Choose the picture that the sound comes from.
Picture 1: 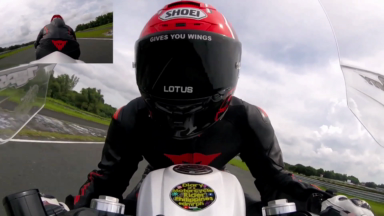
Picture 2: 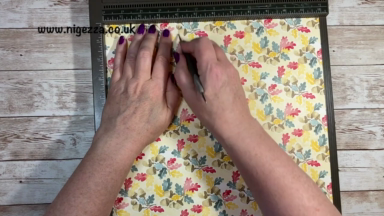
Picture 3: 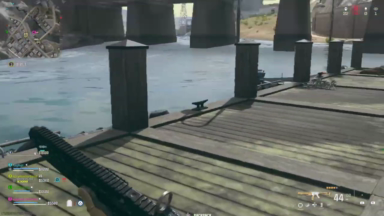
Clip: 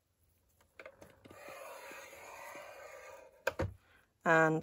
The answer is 2